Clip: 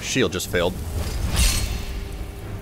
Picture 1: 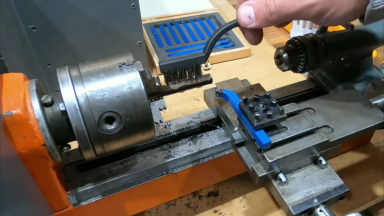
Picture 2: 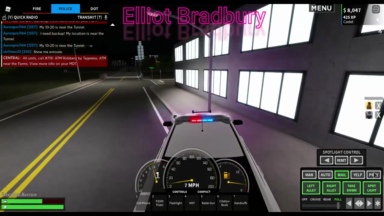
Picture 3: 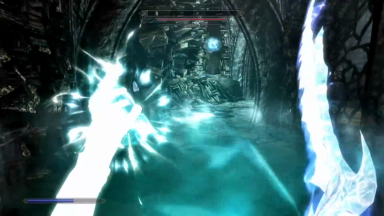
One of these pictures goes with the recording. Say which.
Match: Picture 3